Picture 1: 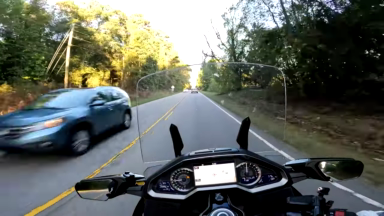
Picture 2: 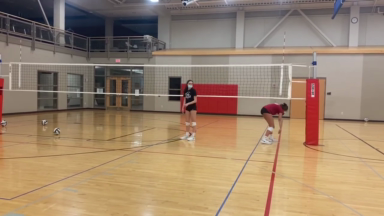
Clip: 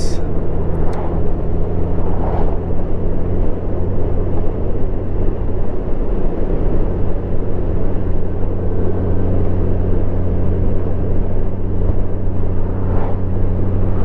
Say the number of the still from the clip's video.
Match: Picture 1